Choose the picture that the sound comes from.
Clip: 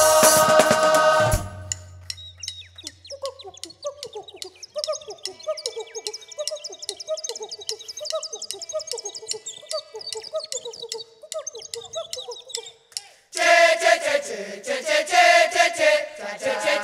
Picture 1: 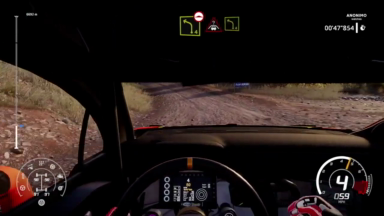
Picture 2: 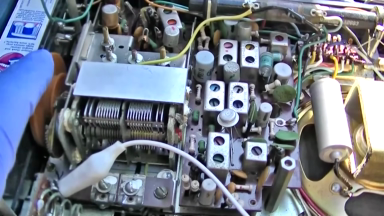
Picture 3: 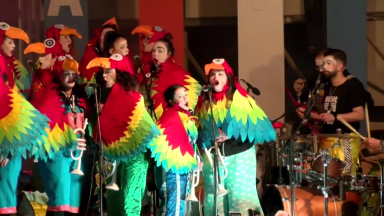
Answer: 3